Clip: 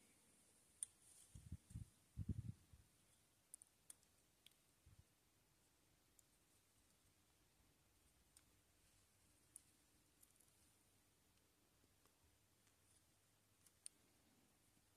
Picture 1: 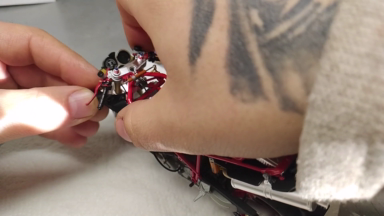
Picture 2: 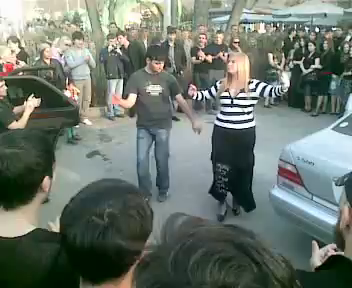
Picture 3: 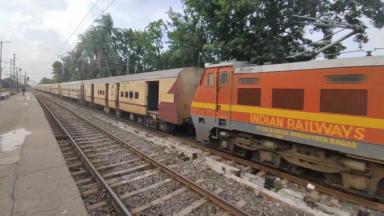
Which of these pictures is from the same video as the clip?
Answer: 1